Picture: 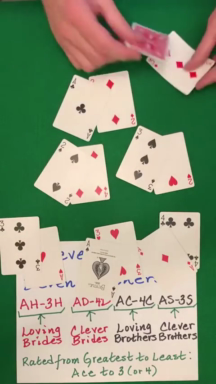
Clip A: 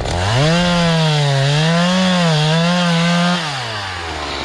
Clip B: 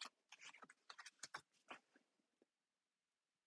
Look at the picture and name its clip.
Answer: B